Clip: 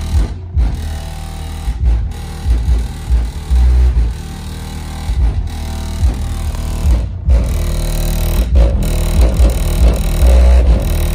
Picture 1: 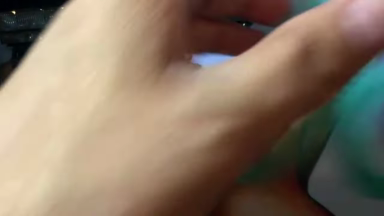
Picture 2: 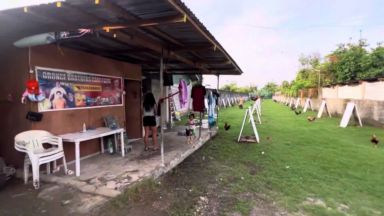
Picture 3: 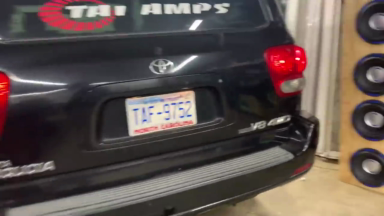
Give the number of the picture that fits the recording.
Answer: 3